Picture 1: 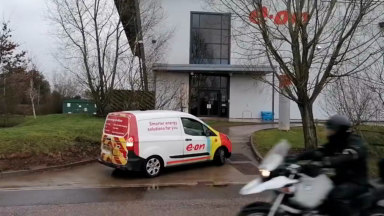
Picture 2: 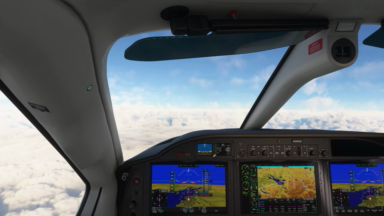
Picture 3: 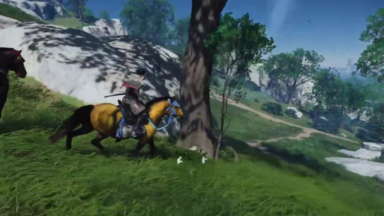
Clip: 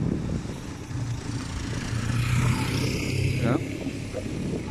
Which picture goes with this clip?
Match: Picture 1